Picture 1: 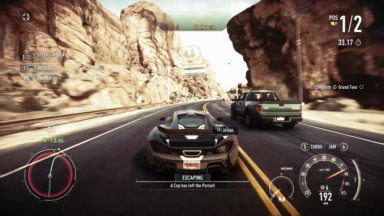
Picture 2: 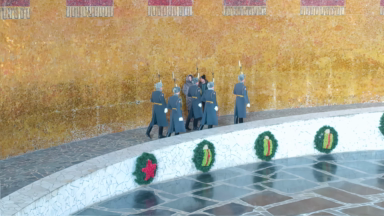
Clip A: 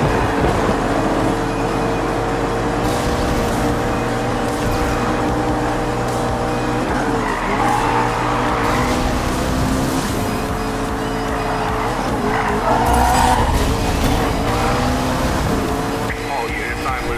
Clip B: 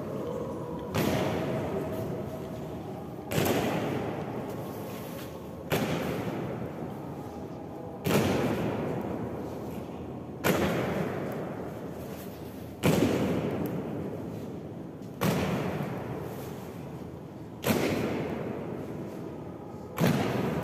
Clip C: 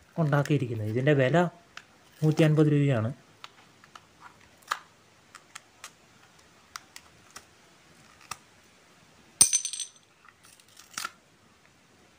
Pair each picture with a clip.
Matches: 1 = A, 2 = B